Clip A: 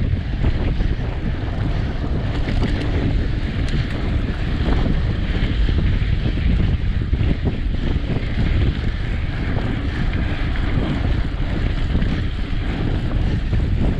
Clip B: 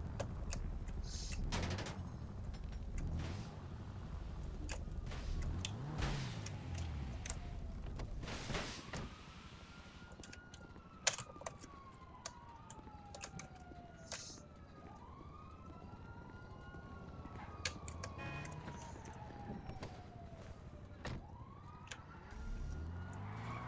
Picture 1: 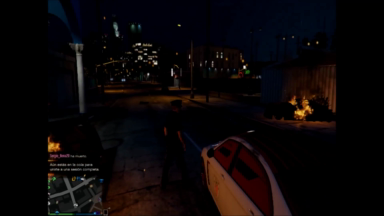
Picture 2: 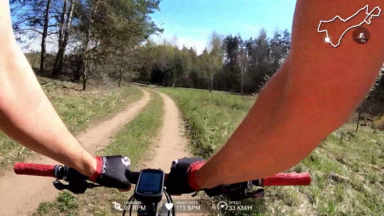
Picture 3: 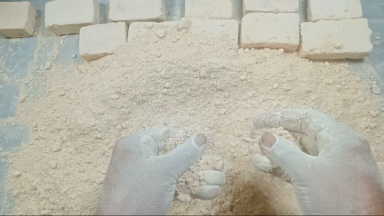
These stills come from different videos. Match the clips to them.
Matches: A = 2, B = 1